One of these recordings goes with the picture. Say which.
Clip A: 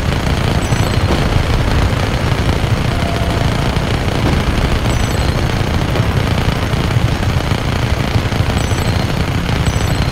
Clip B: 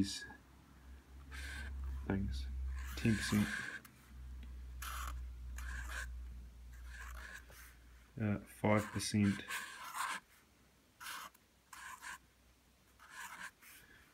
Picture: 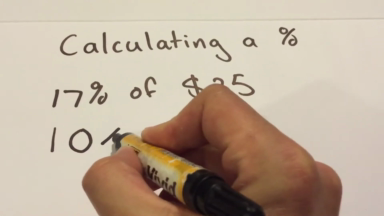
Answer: B